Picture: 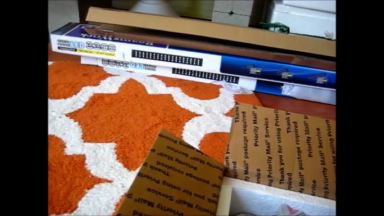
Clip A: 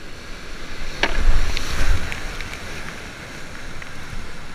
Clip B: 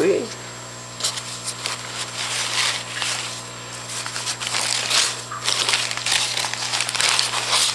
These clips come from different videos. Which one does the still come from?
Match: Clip B